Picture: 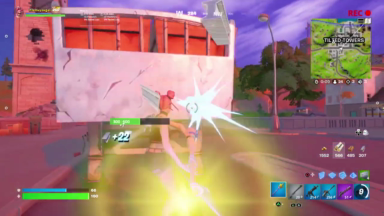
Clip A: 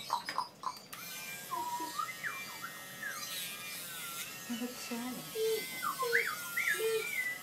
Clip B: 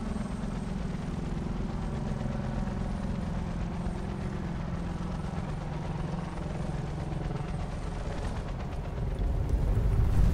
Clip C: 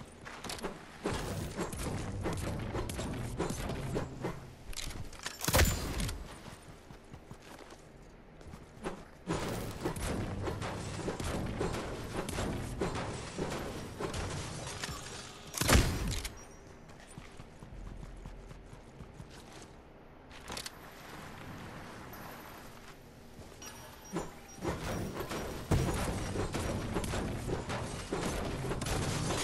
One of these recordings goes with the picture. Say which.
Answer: C